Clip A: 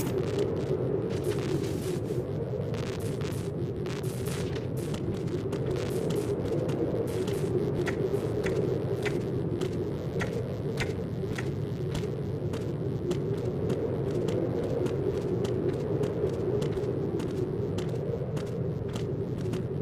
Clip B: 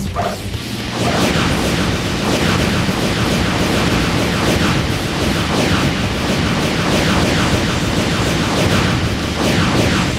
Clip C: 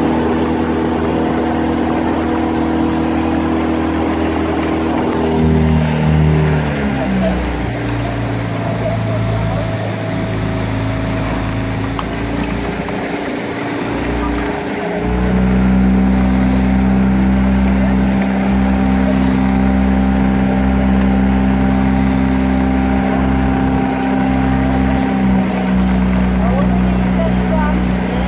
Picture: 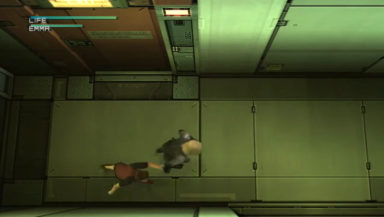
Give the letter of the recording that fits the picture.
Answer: A